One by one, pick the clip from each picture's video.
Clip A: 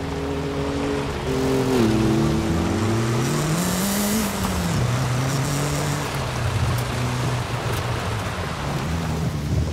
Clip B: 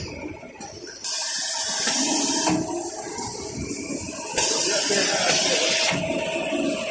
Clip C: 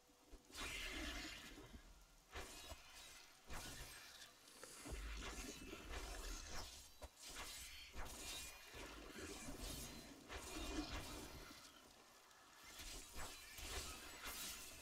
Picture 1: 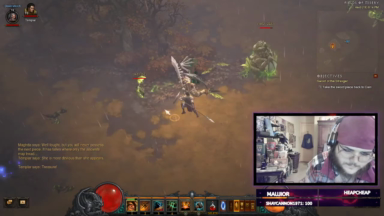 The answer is C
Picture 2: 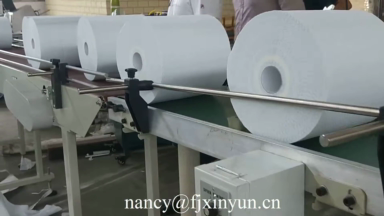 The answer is B